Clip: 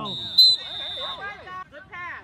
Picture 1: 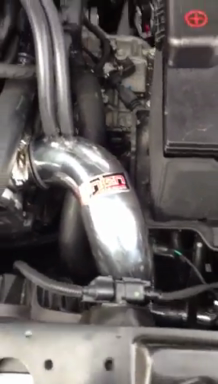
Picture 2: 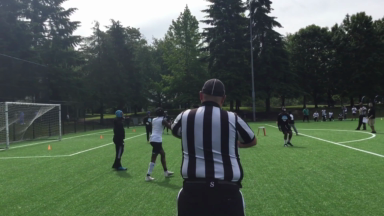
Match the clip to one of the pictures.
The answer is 2